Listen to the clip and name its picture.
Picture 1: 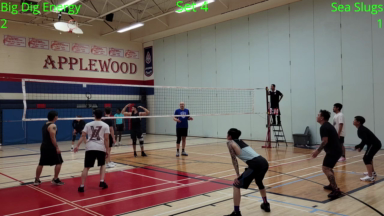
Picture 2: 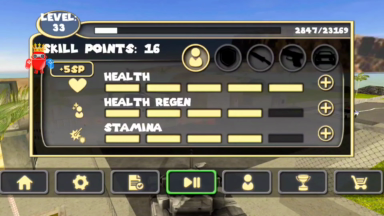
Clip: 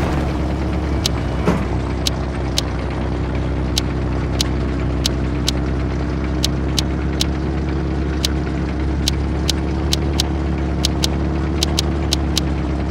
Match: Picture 2